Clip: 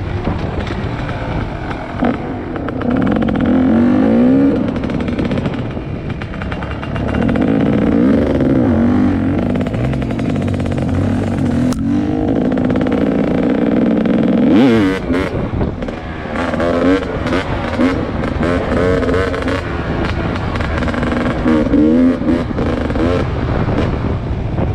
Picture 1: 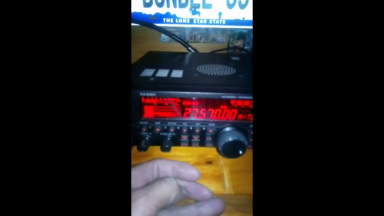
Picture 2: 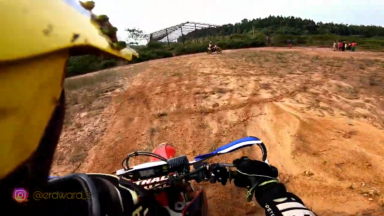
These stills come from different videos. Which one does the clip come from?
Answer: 2